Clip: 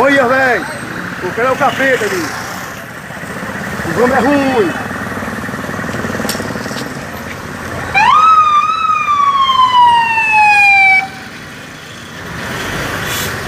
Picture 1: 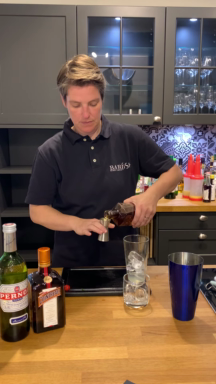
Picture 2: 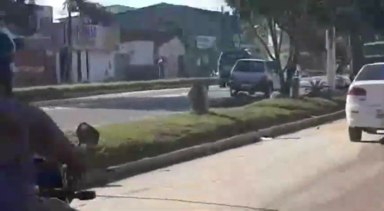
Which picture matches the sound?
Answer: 2